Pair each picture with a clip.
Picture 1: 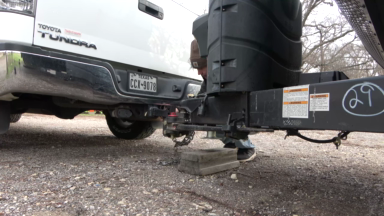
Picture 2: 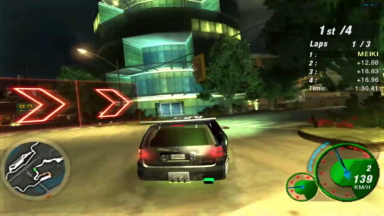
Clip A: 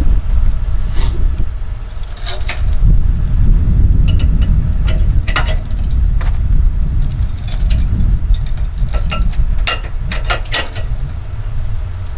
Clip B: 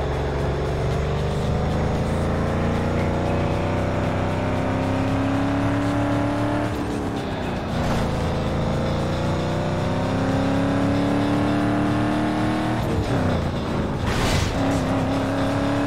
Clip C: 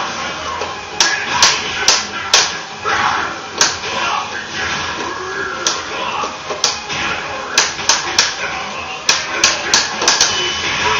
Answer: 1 A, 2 B